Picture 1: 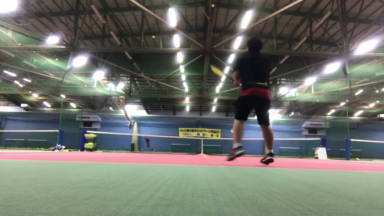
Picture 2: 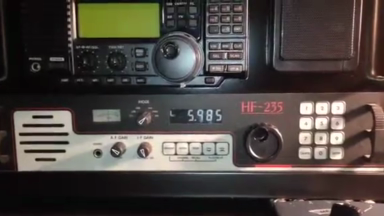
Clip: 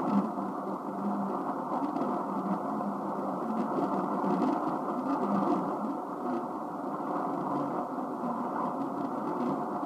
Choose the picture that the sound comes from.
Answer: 2